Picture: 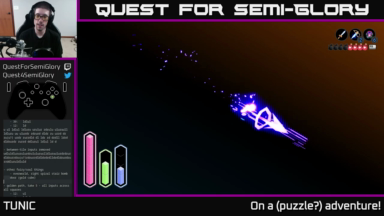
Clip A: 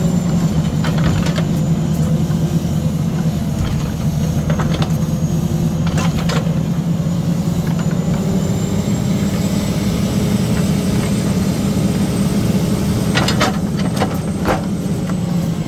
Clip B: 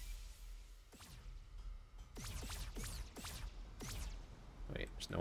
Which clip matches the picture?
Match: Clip B